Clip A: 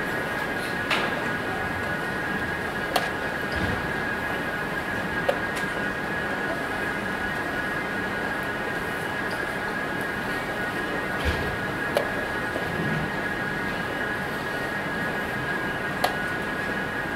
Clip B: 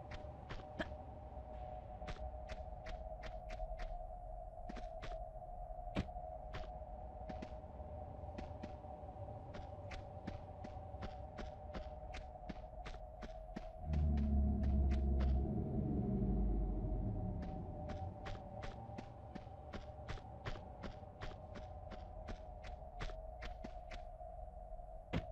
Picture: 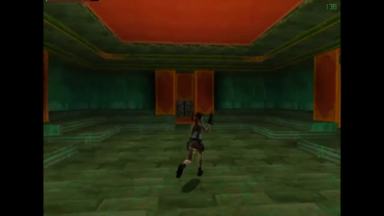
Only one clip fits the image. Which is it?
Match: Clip B